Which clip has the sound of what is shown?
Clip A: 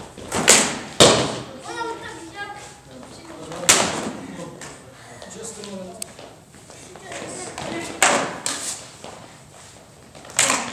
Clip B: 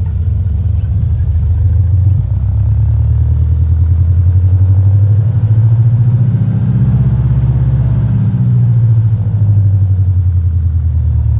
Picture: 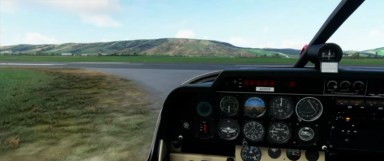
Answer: B